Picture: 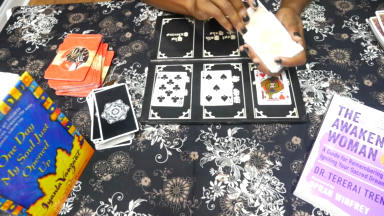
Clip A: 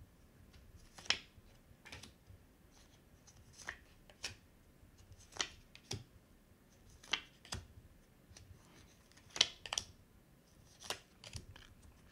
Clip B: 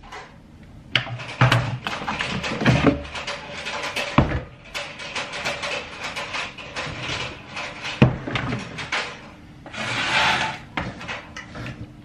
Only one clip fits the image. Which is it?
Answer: A